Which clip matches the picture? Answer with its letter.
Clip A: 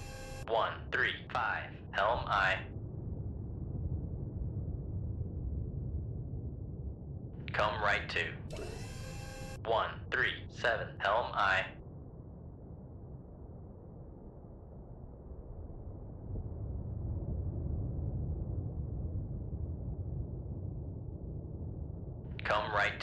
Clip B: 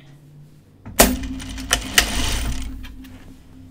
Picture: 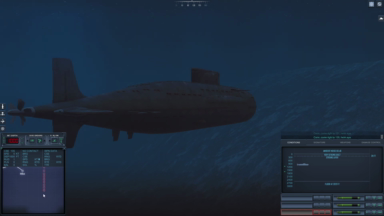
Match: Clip A